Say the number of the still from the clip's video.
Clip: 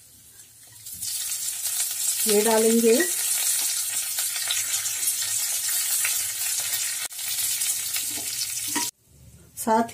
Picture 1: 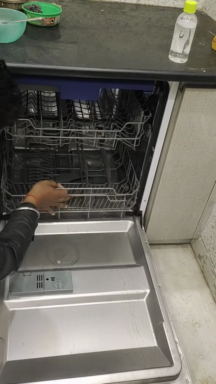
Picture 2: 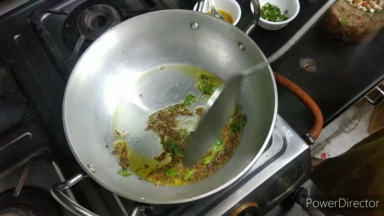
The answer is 2